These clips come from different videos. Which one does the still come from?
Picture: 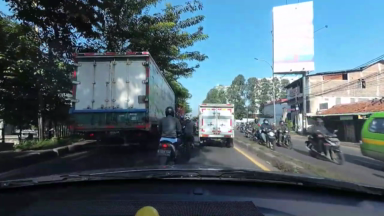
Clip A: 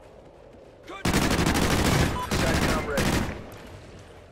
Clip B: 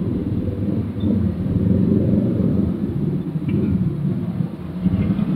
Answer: B